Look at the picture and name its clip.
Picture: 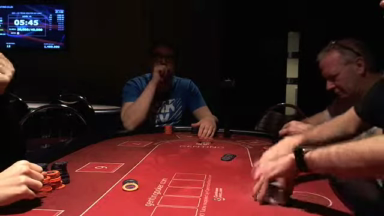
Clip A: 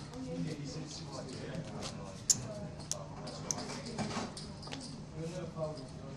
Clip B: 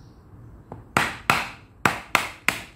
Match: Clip A